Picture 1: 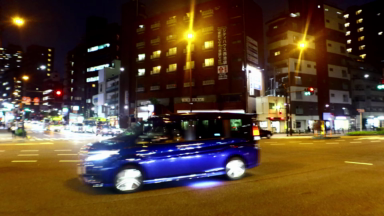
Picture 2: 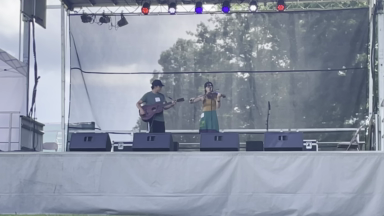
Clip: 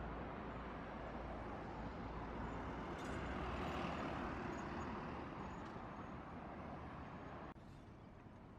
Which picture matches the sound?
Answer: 1